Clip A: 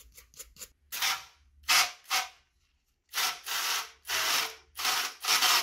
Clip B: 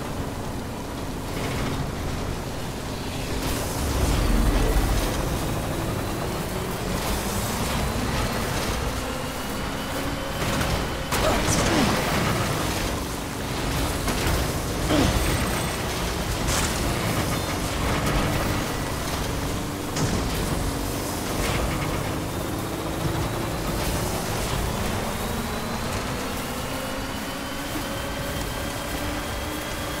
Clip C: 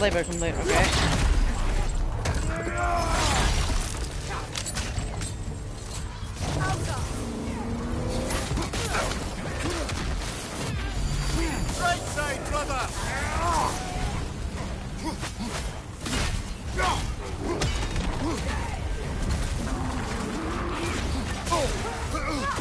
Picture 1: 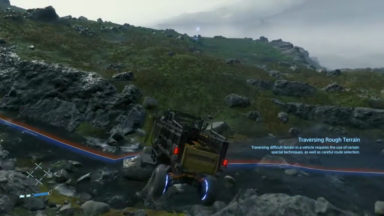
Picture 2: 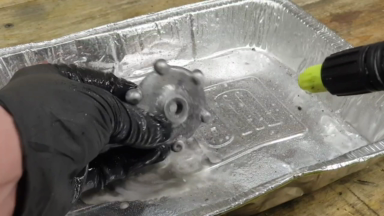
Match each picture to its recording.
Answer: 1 B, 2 A